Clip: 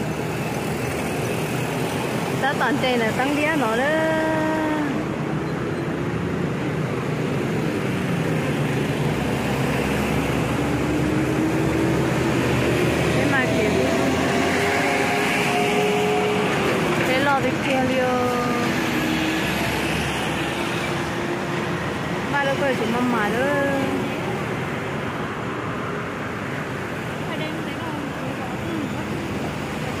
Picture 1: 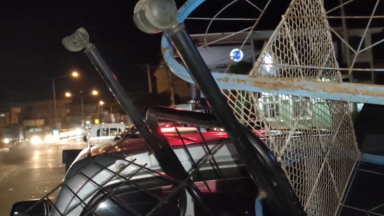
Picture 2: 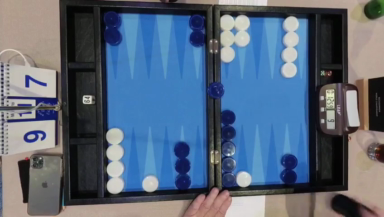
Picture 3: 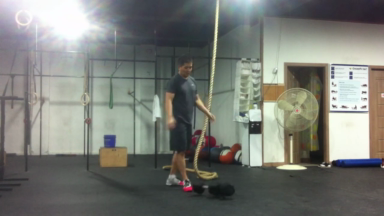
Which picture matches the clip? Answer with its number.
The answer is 1